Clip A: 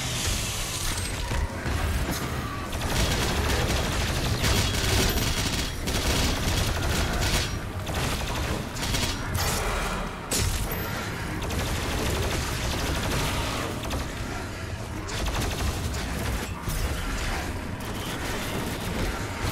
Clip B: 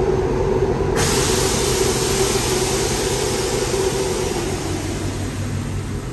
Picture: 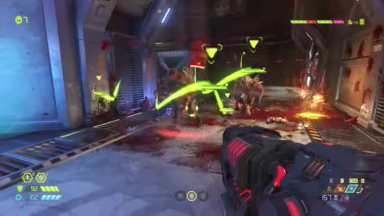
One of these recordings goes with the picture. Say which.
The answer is A